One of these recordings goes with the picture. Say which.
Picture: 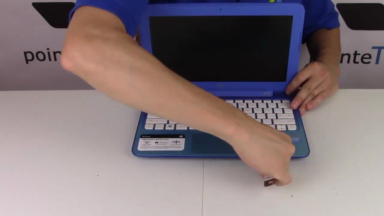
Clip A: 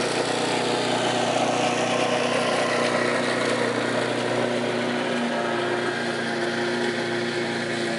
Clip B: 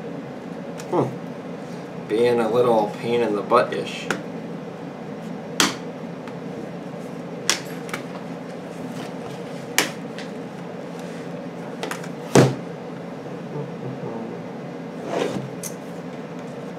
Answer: B